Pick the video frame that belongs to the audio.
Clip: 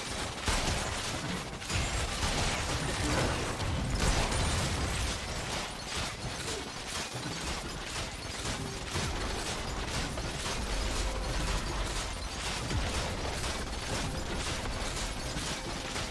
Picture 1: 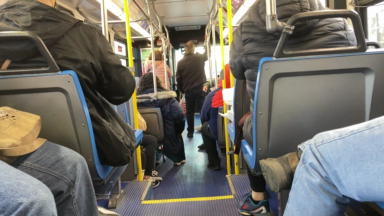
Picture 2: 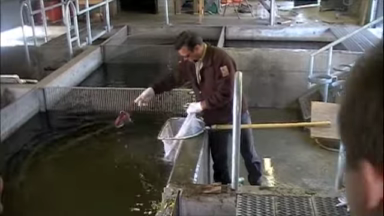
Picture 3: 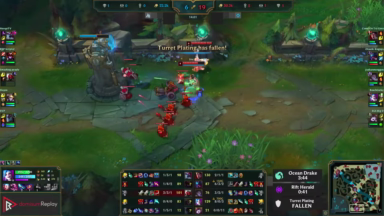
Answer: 3